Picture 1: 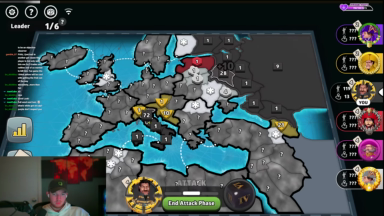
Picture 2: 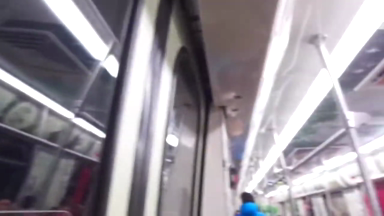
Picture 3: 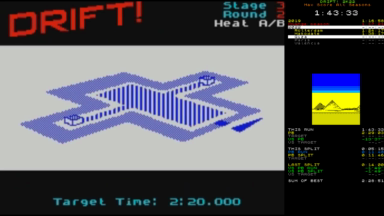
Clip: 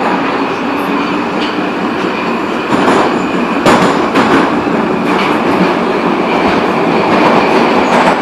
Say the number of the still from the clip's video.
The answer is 2